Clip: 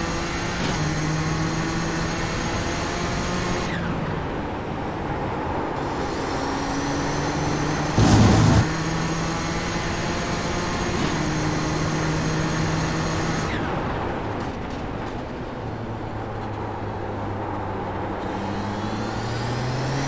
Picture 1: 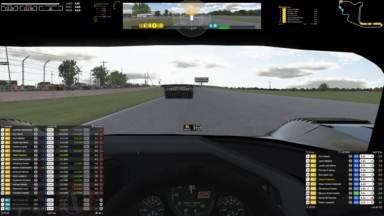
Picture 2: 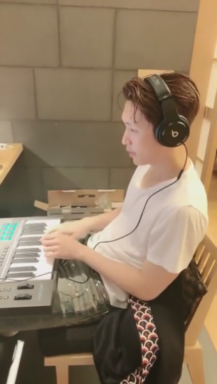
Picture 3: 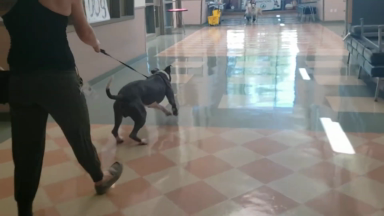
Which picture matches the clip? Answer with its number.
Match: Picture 1